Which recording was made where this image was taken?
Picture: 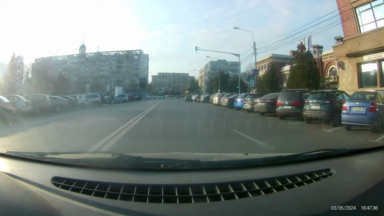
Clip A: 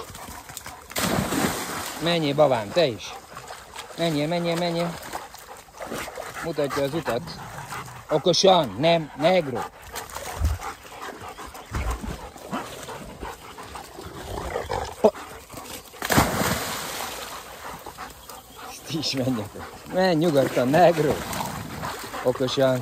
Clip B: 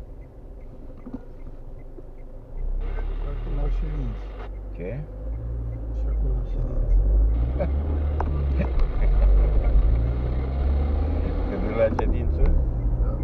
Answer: B